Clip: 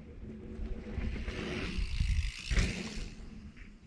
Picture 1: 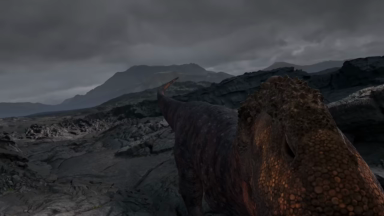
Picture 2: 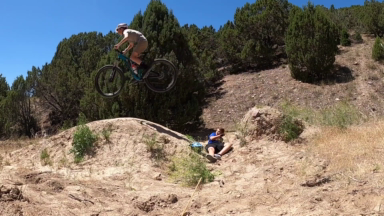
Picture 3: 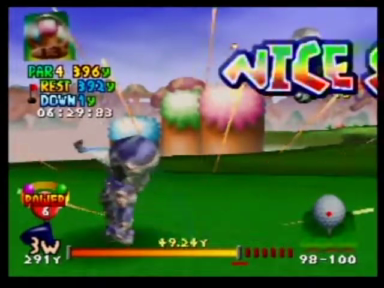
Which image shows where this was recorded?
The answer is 2